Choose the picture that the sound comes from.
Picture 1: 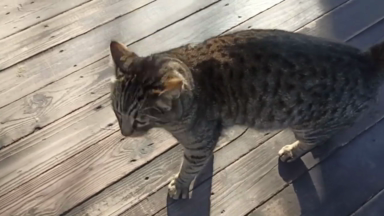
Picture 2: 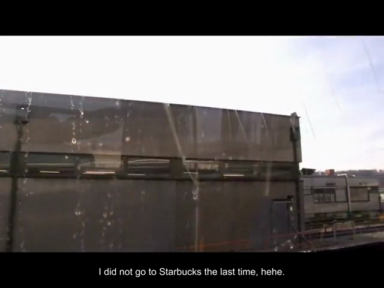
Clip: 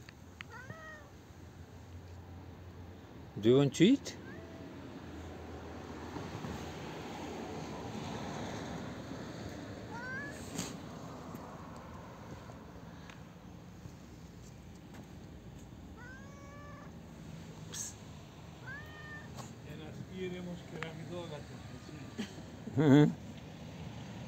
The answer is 1